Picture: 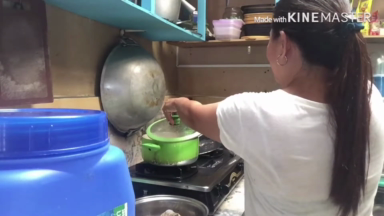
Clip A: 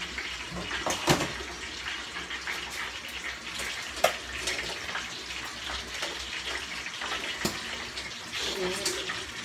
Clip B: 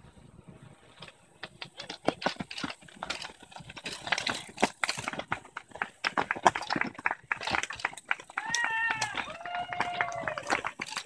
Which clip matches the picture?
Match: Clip A